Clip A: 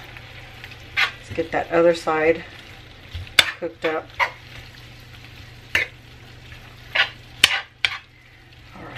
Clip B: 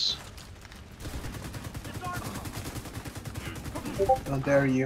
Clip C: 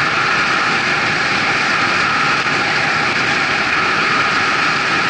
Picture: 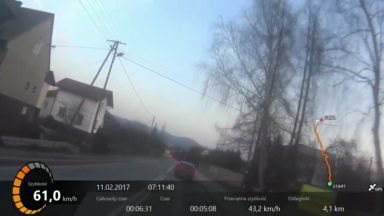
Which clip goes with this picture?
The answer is C